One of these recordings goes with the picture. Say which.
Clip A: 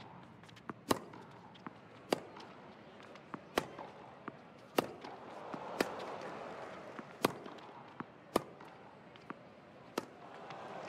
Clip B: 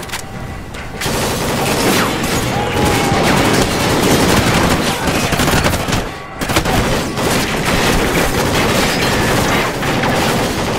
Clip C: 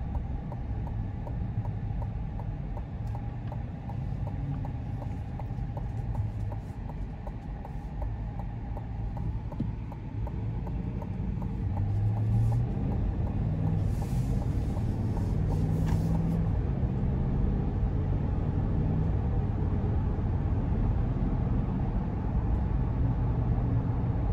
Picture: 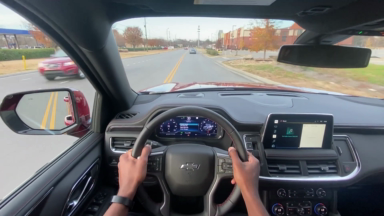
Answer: C